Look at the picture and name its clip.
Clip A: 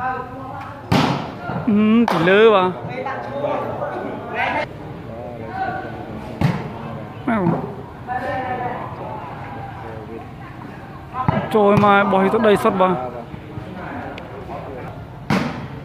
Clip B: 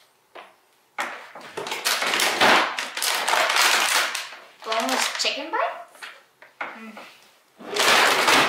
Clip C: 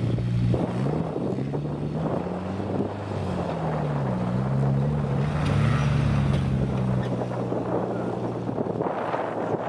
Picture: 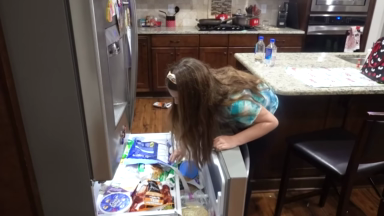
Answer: B